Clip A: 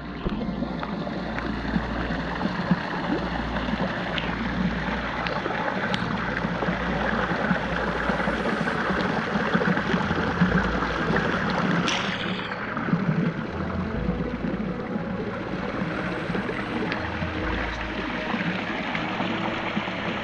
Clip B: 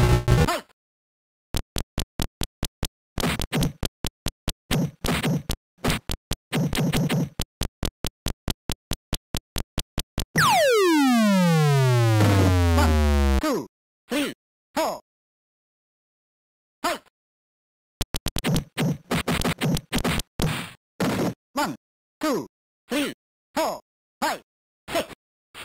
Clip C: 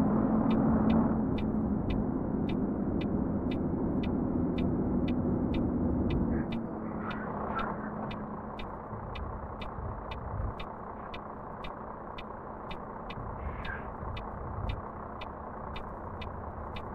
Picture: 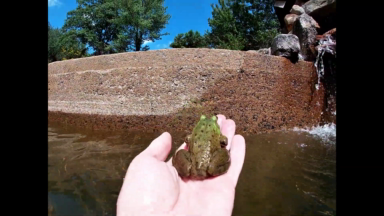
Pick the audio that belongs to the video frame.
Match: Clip A